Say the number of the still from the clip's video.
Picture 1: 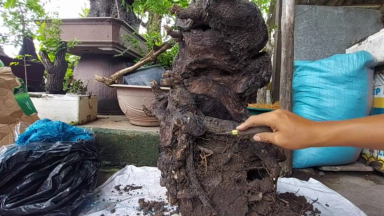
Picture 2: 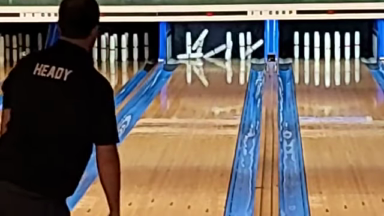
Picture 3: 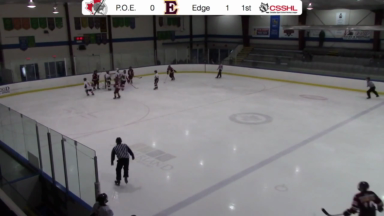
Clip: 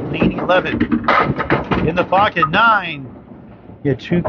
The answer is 2